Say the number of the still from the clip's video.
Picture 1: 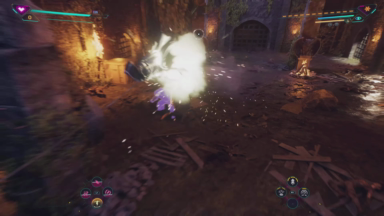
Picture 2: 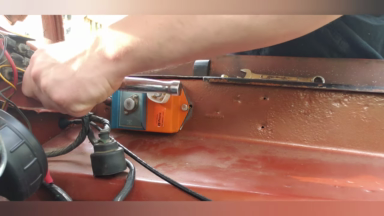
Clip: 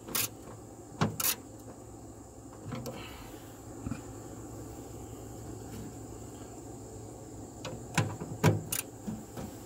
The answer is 2